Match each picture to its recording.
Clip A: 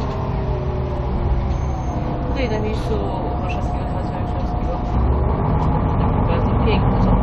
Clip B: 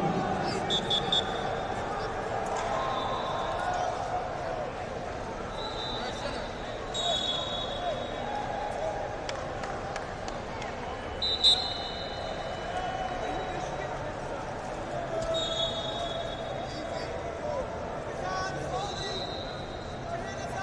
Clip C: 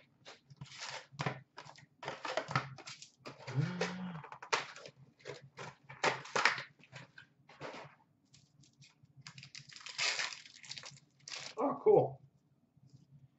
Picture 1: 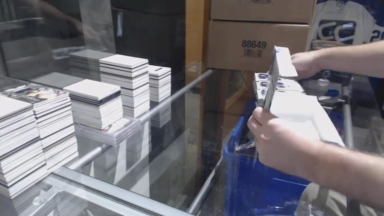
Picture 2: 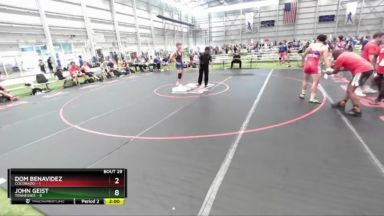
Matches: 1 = C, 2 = B